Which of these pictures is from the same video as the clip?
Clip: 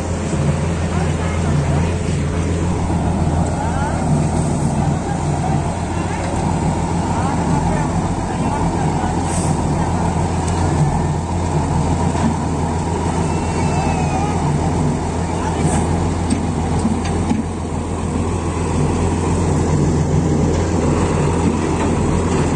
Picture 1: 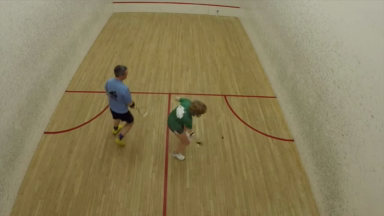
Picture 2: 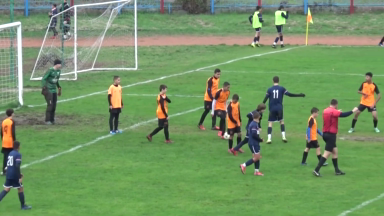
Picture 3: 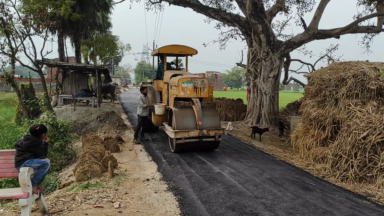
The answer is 3